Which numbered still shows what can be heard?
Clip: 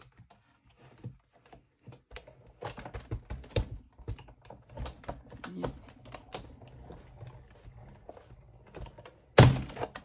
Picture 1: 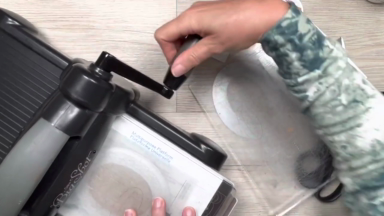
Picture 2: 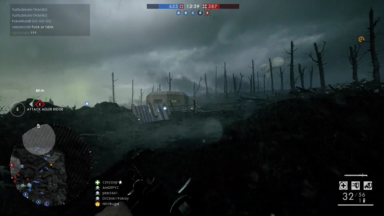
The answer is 1